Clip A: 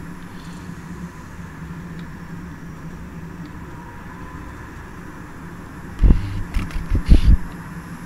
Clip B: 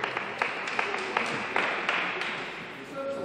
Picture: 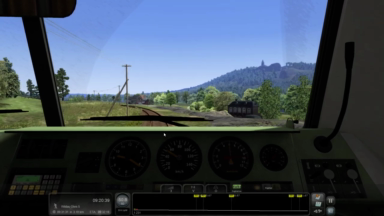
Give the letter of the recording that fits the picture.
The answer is A